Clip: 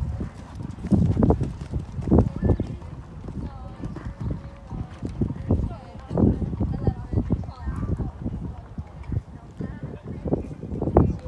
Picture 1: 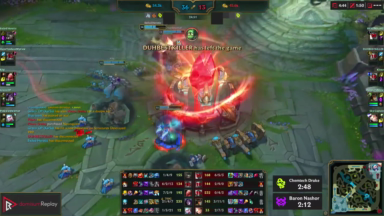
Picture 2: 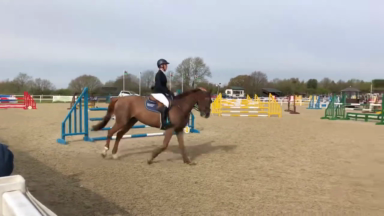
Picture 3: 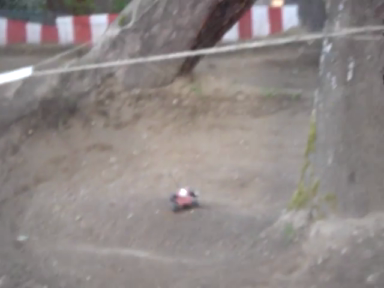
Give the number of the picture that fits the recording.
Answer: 2